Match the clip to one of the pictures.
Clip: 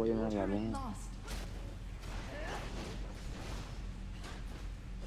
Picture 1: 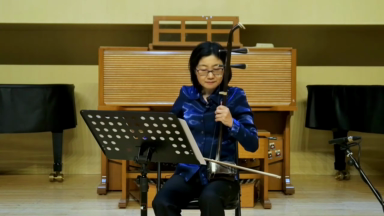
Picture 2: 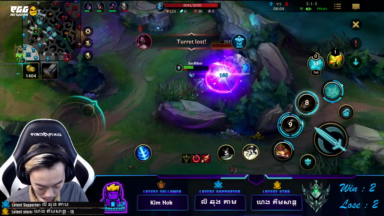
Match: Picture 2